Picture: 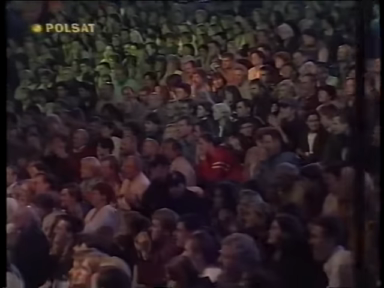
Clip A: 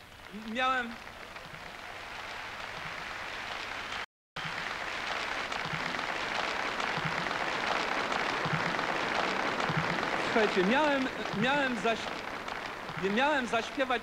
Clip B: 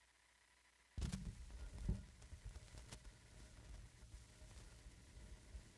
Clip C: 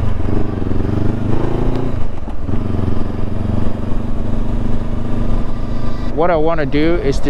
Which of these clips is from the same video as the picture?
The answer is A